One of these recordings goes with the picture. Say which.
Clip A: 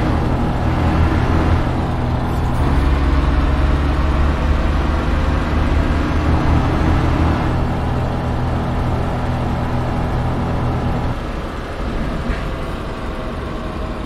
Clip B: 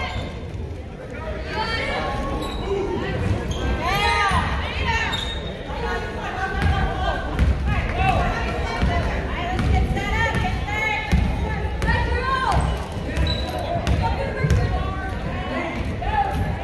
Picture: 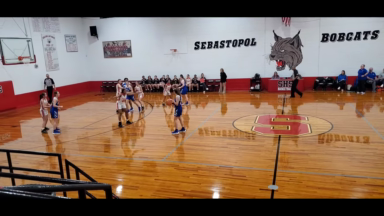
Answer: B